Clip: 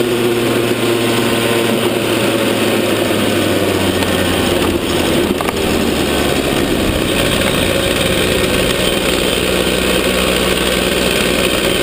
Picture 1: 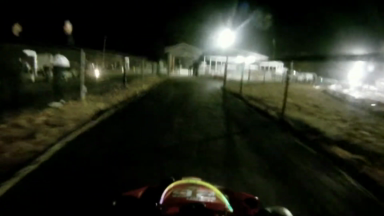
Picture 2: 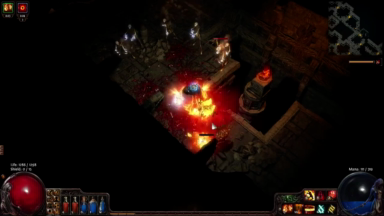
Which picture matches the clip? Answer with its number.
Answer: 1